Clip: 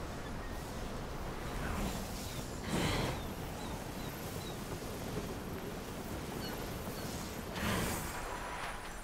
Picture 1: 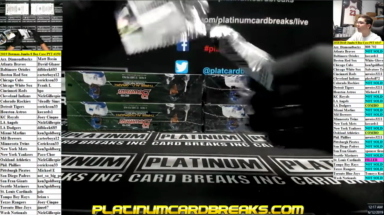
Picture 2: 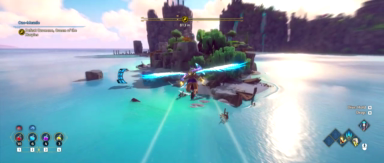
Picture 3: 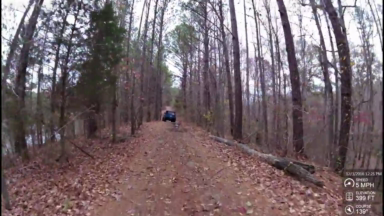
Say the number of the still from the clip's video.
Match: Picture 2